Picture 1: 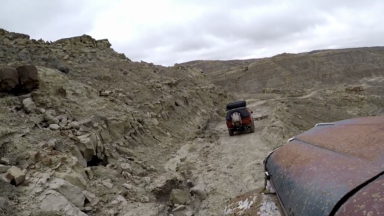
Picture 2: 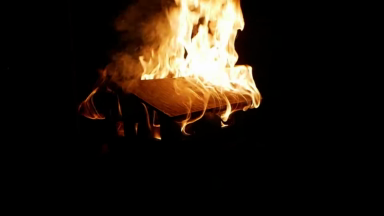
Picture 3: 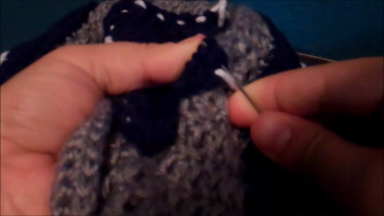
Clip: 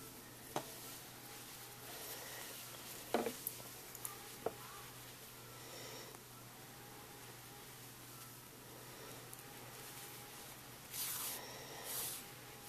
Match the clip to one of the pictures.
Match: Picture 3